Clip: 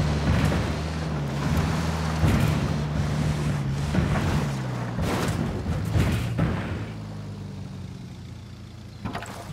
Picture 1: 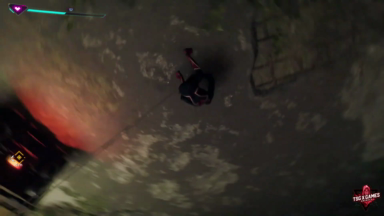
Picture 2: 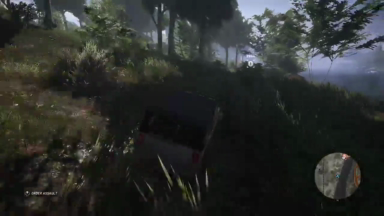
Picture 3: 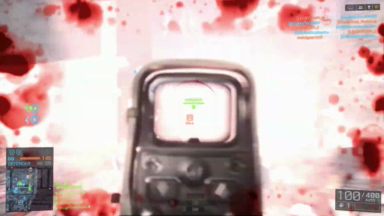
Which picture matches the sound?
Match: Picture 2